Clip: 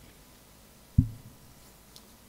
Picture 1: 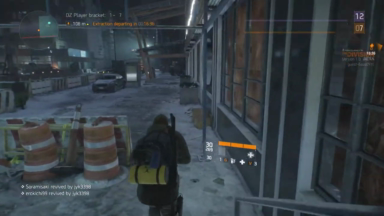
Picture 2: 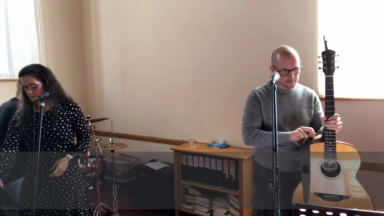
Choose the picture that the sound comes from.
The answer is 2